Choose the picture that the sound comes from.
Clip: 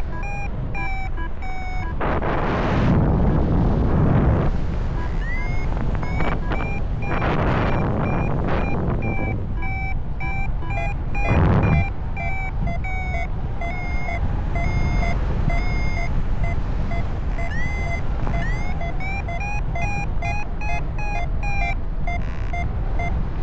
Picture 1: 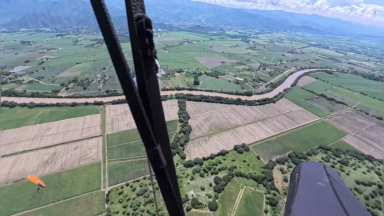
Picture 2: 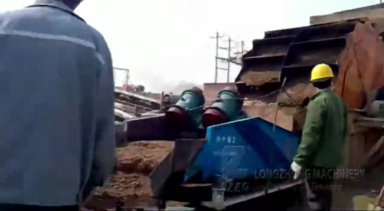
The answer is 1